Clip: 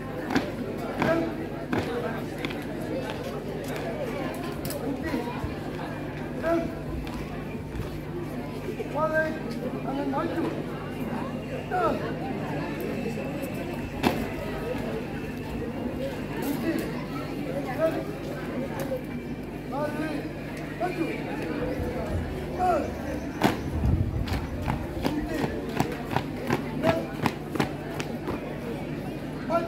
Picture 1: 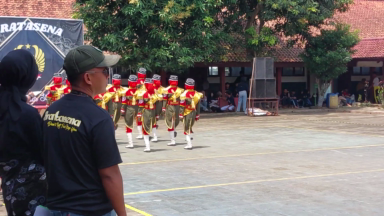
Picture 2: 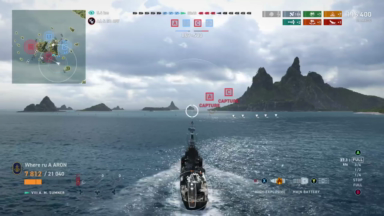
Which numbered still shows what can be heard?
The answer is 1